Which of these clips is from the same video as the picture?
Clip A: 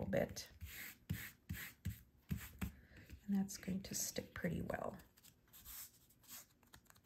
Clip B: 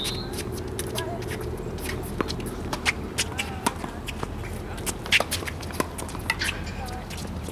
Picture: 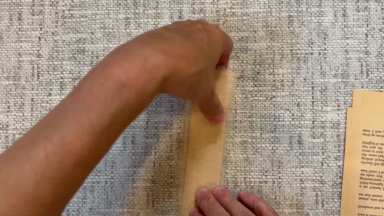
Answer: A